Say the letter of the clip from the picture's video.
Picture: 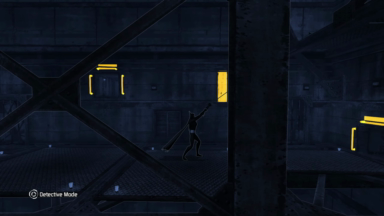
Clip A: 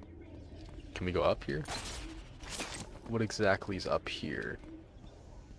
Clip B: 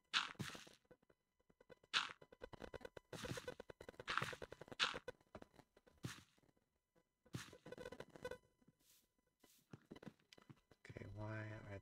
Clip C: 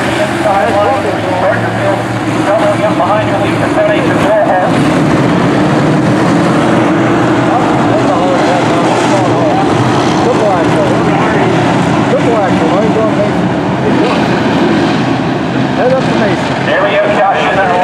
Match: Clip A